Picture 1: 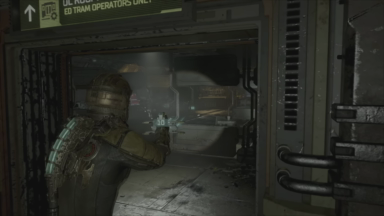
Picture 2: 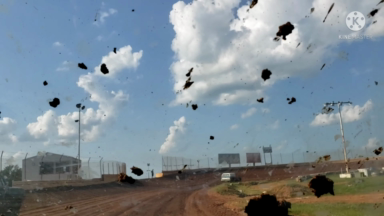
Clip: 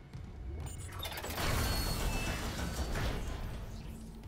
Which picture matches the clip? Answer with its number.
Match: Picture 1